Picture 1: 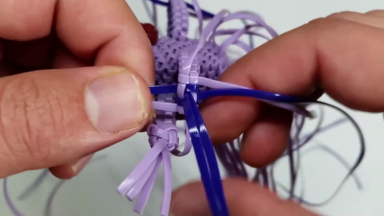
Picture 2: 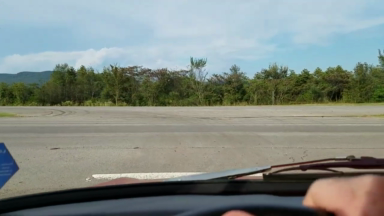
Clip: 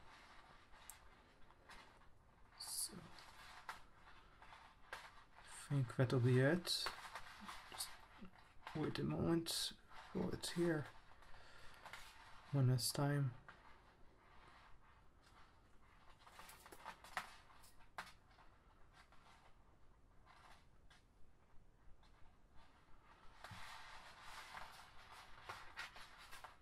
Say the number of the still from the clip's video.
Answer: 1